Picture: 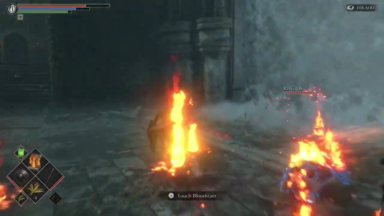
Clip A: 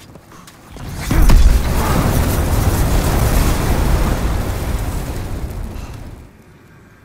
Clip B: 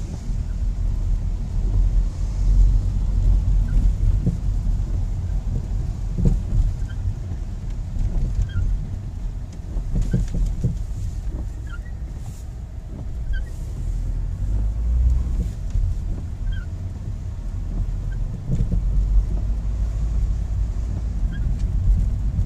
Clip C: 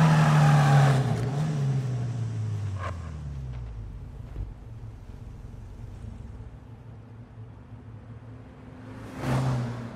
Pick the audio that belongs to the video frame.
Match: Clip A